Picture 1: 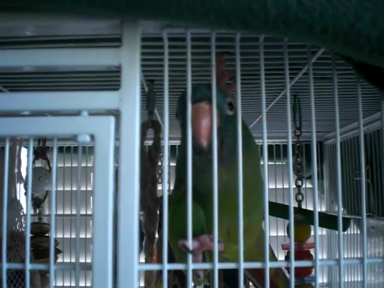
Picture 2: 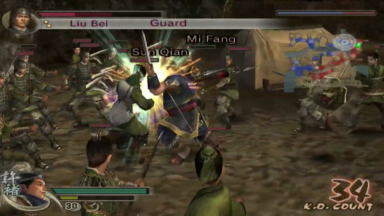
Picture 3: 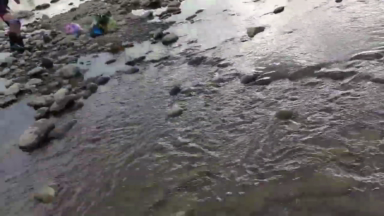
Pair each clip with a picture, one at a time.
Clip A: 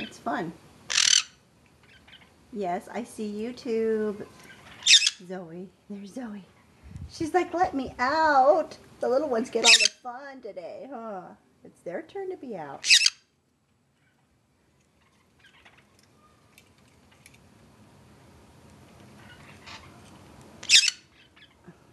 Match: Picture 1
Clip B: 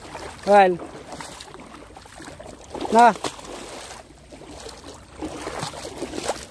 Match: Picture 3